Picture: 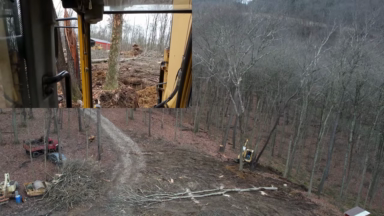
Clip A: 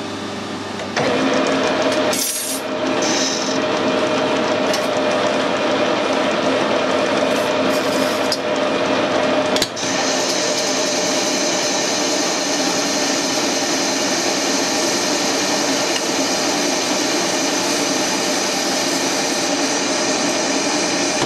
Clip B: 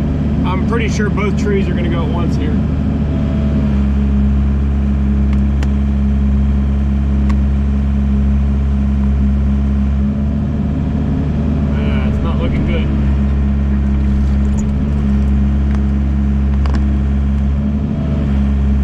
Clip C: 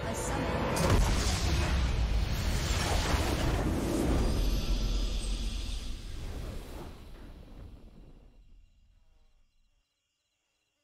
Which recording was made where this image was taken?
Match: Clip B